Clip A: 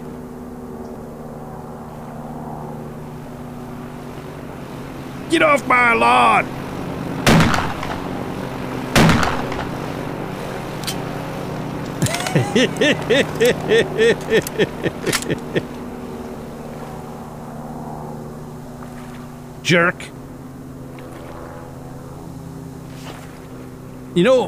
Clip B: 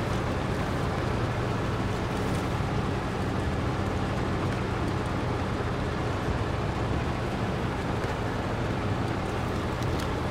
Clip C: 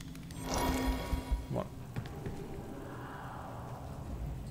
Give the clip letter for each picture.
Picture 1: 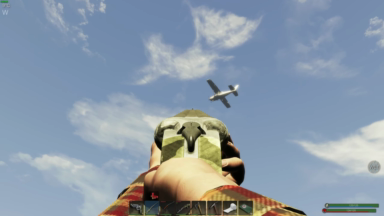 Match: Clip A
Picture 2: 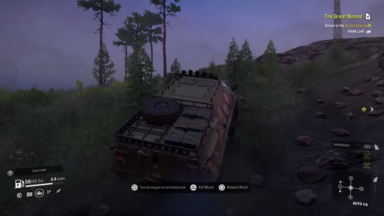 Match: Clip B